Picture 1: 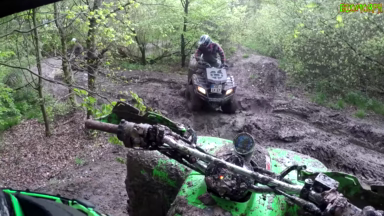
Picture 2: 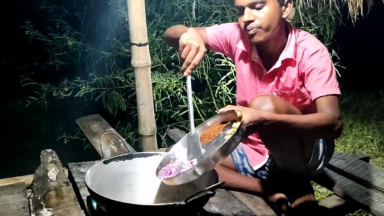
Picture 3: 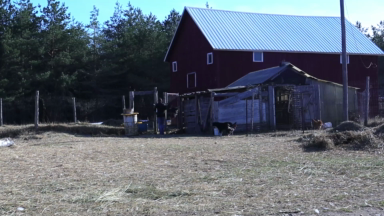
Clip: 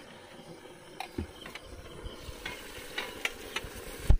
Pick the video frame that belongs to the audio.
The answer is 2